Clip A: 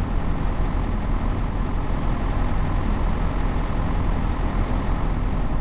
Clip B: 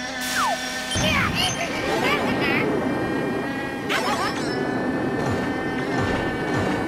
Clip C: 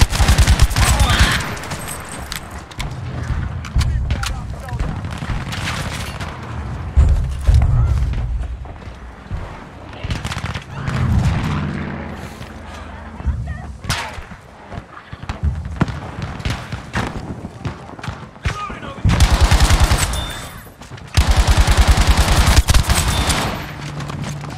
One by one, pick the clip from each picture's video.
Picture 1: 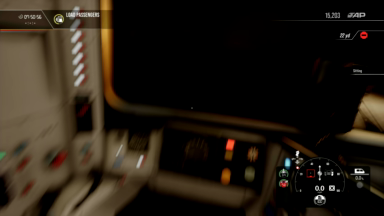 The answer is A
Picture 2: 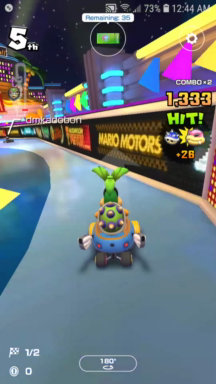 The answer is B